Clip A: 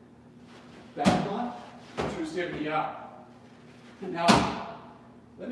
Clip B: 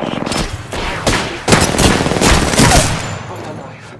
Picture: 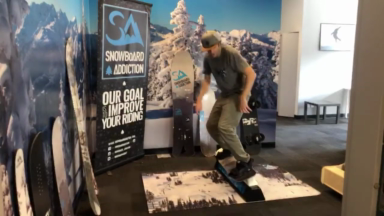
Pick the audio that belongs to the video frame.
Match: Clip A